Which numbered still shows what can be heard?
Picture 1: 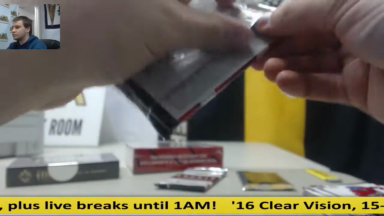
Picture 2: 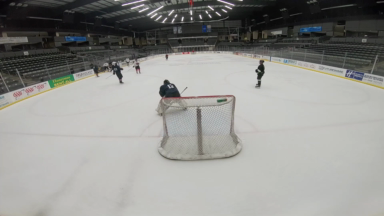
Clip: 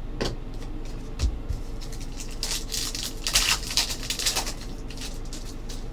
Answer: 1